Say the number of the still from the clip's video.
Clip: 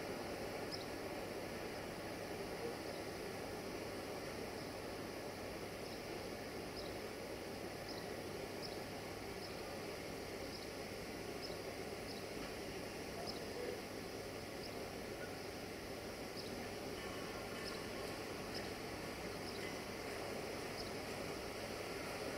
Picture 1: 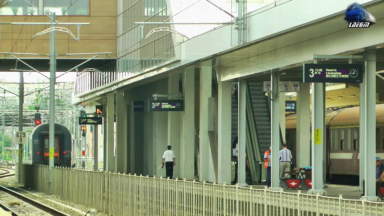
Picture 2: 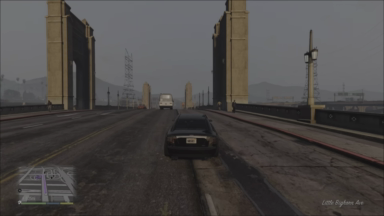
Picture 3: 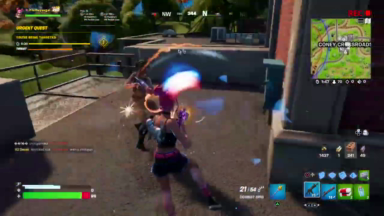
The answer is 1